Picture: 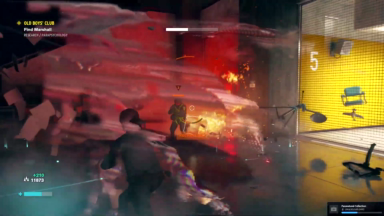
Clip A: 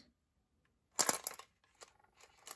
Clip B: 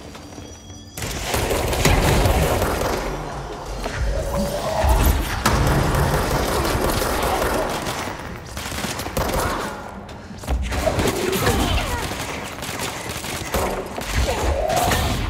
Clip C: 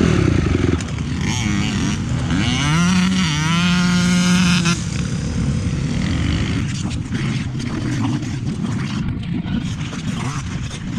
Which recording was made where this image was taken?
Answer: B